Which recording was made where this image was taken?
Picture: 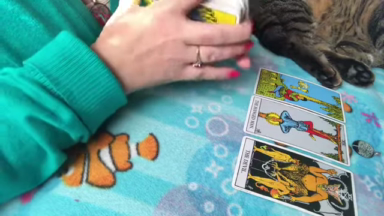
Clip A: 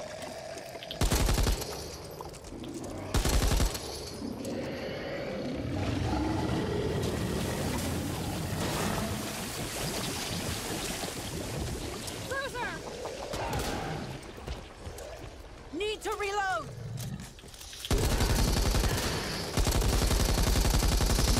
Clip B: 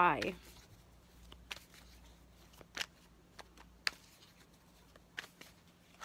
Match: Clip B